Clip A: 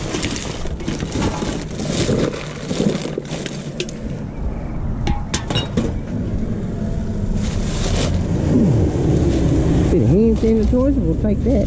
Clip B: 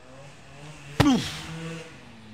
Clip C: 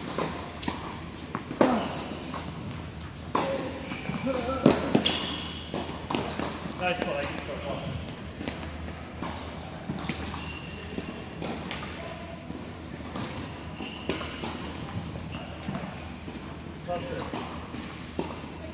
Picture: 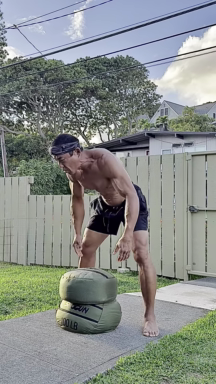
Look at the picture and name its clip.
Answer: B